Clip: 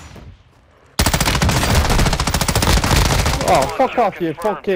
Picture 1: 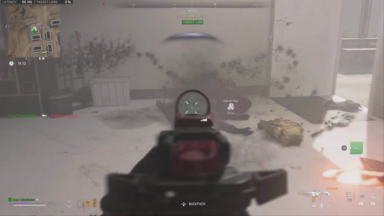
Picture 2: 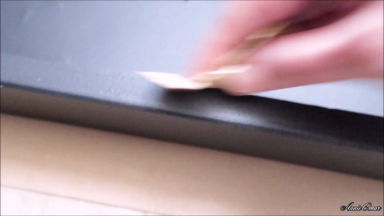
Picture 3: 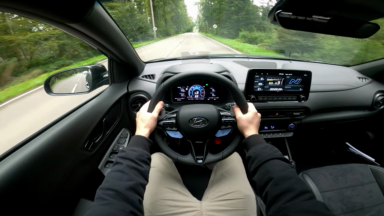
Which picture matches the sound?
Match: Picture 1